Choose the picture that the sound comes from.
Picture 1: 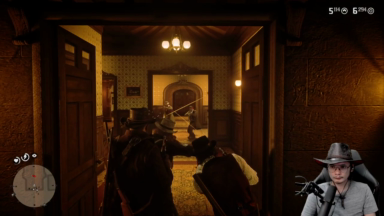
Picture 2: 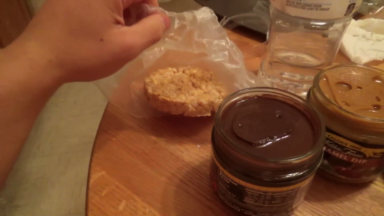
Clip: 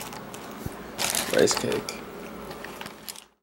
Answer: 2